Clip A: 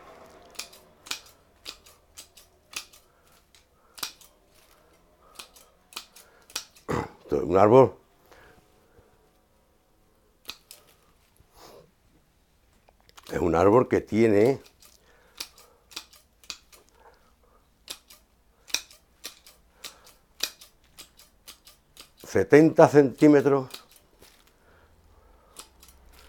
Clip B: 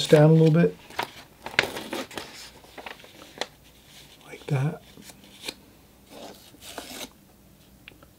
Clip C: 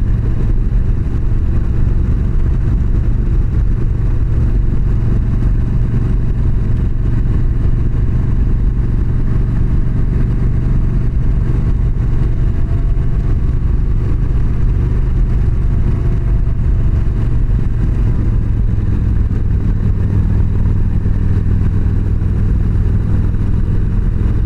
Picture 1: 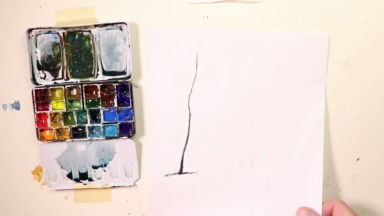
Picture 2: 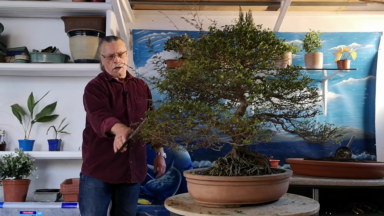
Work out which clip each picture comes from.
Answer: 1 B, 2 A